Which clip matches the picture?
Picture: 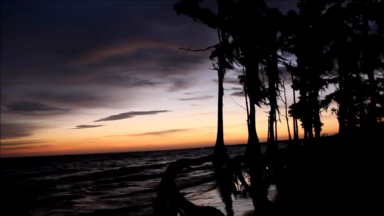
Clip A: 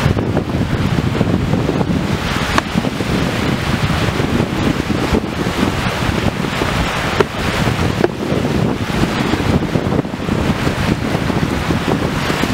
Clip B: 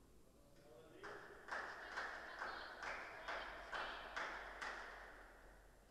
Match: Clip A